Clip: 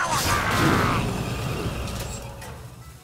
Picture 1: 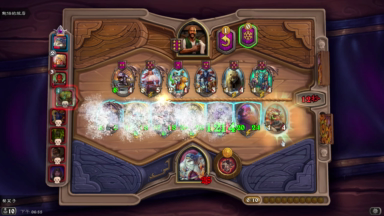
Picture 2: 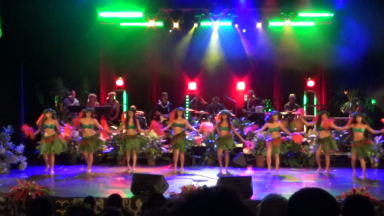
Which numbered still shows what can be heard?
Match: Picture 1